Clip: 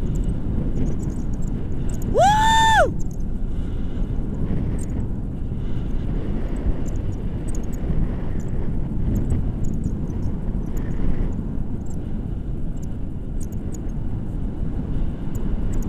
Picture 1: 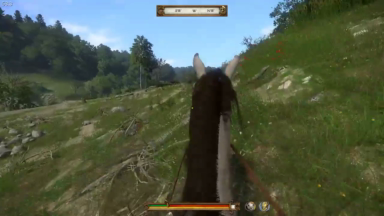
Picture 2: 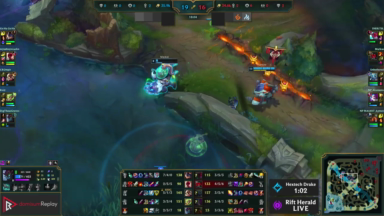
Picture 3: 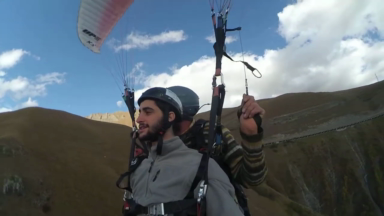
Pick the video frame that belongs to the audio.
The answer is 3